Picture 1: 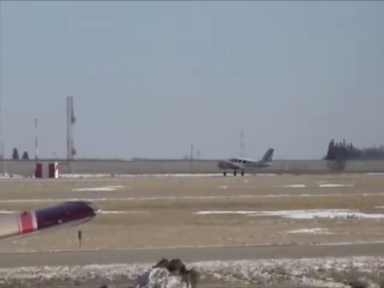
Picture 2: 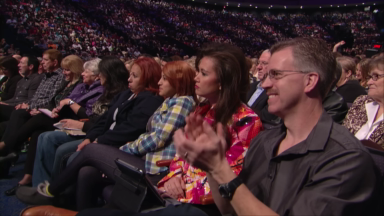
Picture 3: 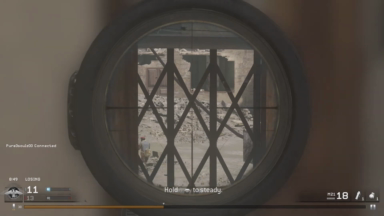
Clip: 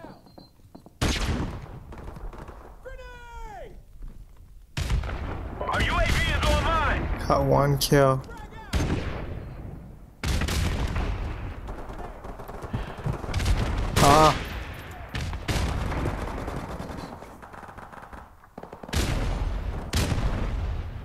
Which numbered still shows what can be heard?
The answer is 3